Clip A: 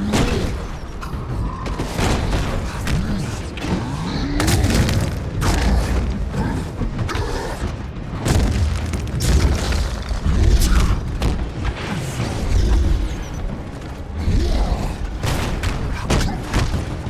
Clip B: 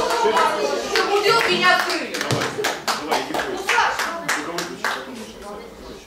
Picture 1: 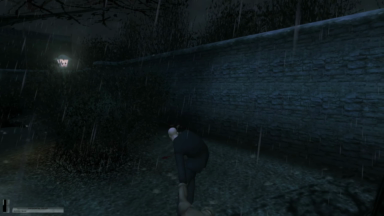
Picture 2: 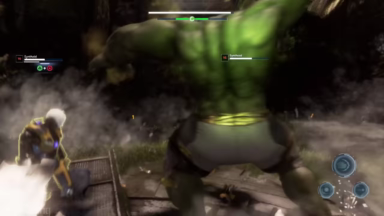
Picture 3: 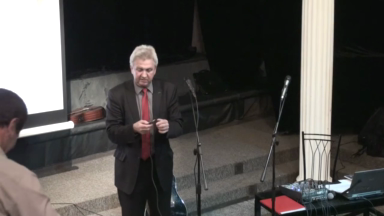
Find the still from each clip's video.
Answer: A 2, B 3